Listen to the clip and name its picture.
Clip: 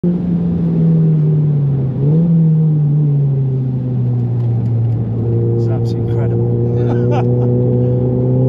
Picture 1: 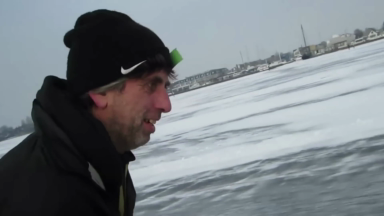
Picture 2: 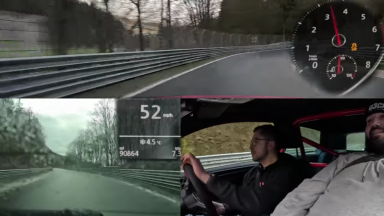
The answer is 2